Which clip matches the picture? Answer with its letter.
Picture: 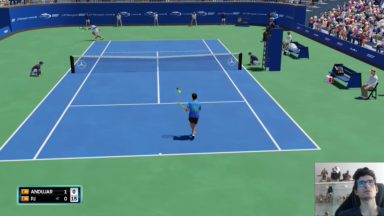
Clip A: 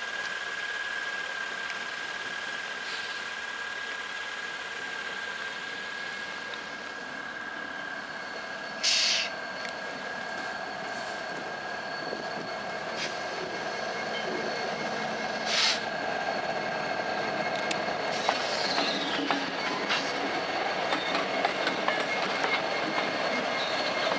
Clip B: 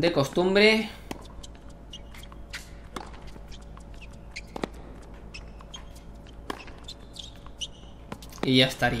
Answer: B